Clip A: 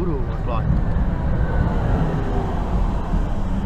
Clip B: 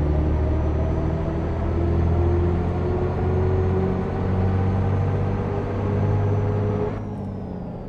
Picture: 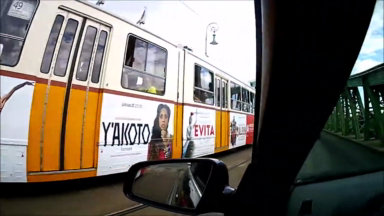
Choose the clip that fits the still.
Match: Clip A